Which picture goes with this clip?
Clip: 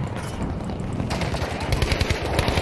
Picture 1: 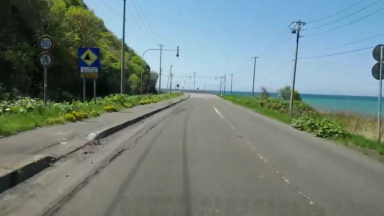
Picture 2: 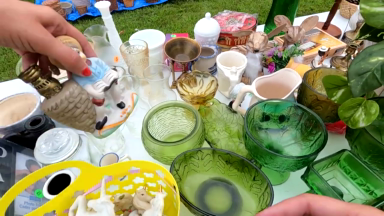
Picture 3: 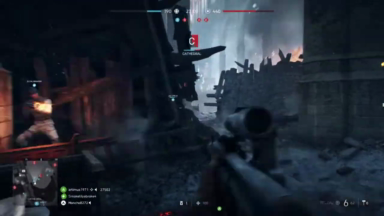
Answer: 3